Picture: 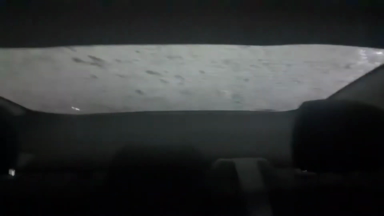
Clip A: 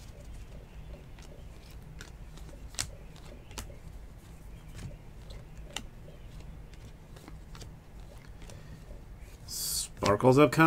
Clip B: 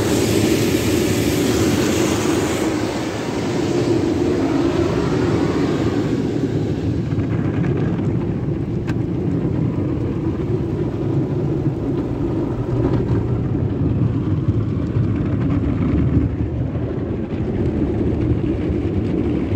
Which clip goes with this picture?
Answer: B